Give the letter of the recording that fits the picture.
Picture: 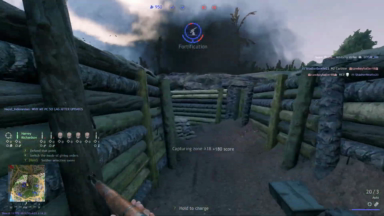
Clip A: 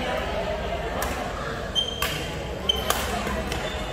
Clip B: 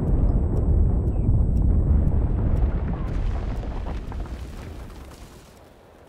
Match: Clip B